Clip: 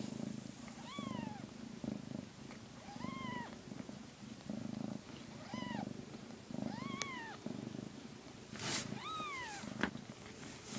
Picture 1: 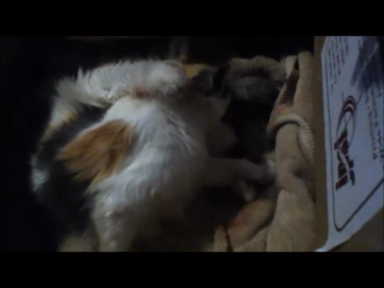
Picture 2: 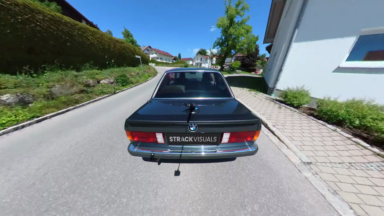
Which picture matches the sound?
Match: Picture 1